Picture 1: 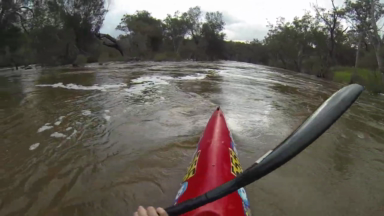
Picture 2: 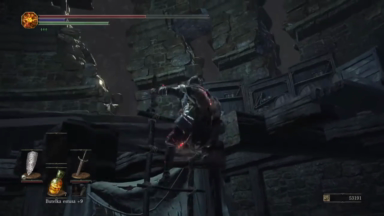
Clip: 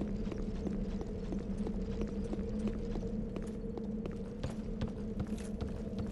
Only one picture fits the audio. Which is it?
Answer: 2